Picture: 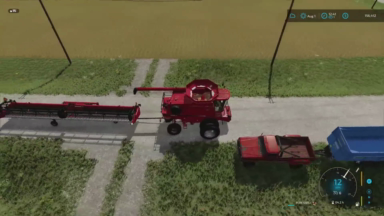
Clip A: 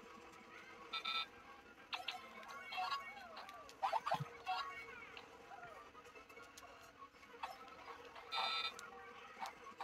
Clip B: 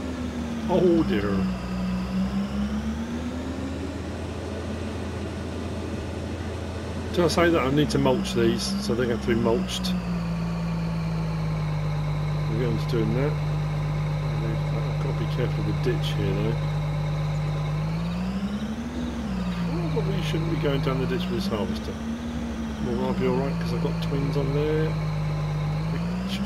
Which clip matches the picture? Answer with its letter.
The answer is B